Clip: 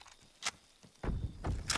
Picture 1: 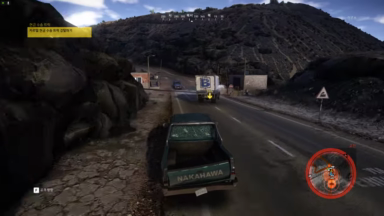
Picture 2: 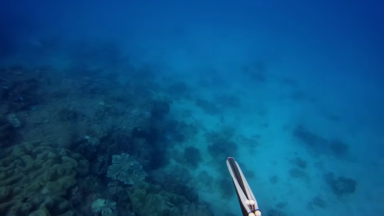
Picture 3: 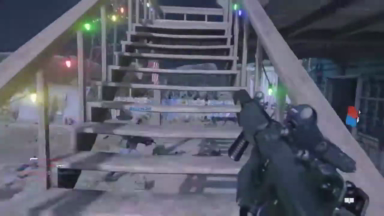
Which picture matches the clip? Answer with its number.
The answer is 3